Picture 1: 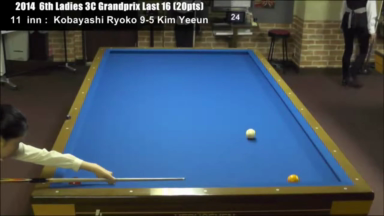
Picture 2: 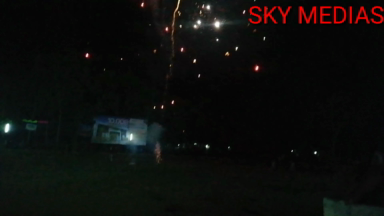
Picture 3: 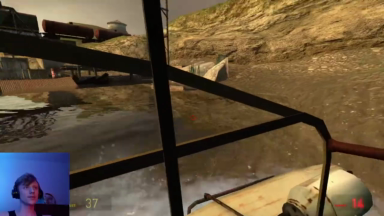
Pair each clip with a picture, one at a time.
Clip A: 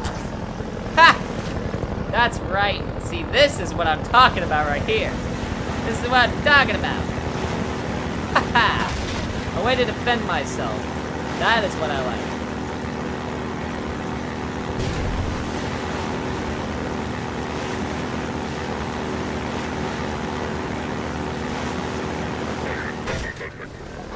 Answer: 3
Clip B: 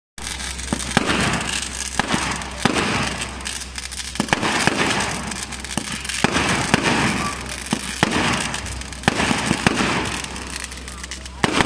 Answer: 2